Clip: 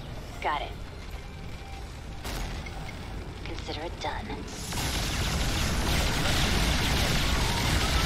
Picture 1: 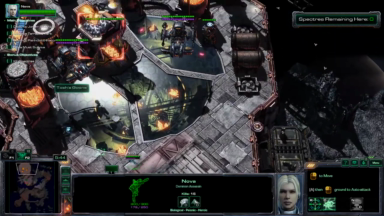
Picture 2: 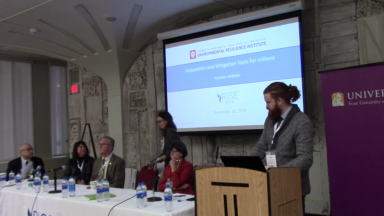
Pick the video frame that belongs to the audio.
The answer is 1